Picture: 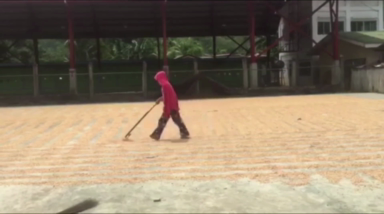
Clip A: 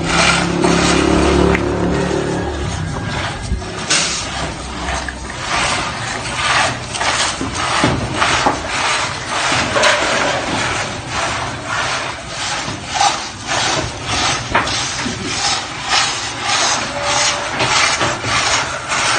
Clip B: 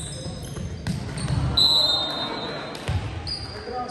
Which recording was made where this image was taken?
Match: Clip A